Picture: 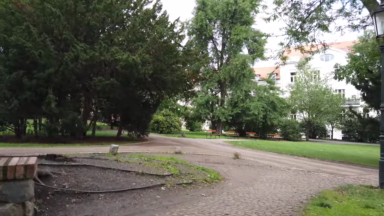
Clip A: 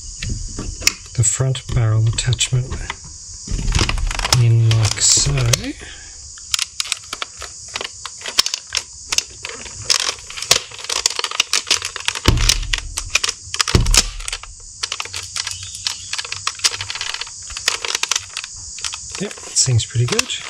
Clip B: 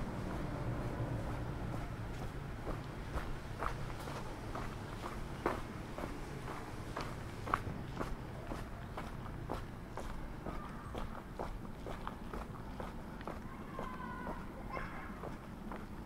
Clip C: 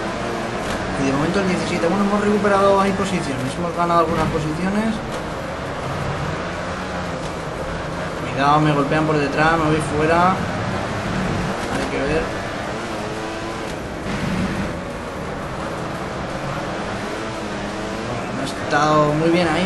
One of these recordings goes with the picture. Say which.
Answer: B